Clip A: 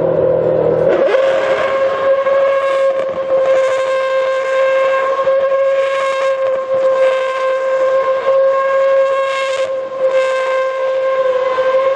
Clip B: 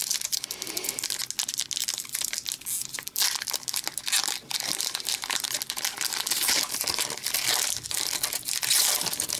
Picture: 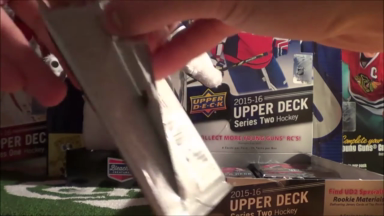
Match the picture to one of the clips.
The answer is B